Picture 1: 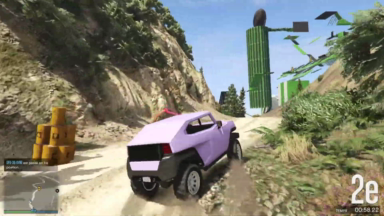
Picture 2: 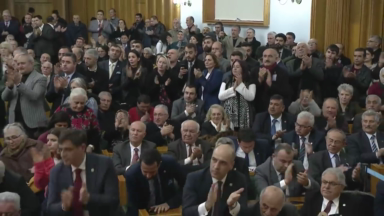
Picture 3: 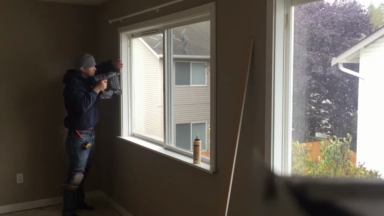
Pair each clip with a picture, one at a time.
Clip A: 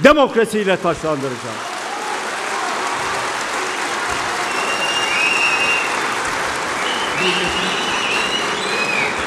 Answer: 2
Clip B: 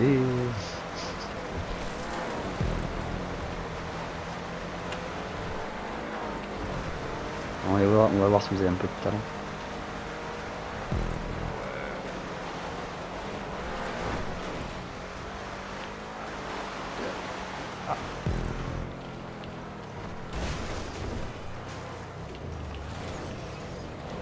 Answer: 1